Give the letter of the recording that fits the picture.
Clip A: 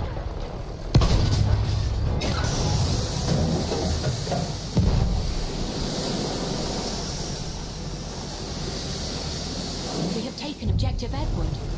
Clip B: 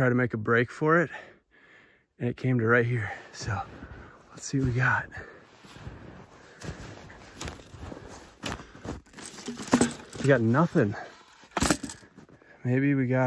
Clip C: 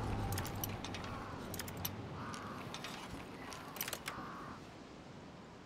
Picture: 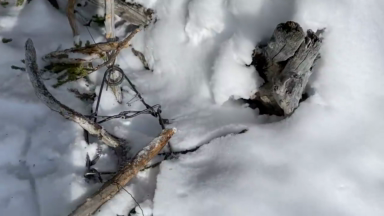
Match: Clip B